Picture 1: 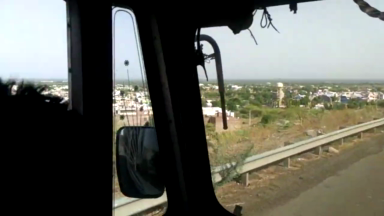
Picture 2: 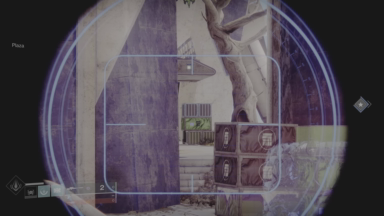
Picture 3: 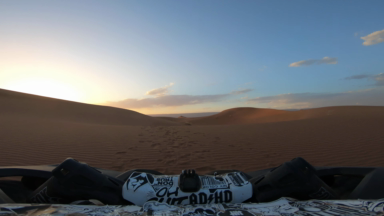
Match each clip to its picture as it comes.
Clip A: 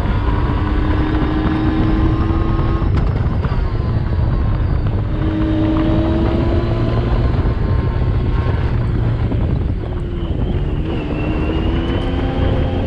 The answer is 3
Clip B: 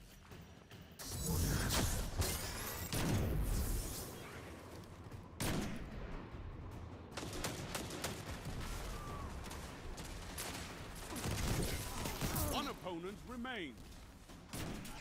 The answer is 2